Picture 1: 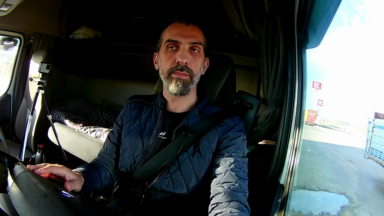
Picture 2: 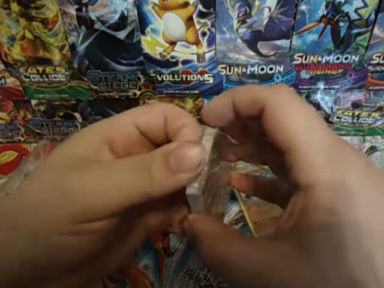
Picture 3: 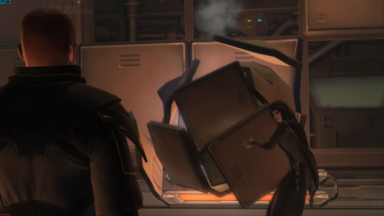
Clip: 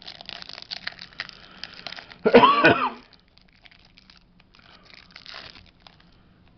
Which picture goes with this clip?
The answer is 2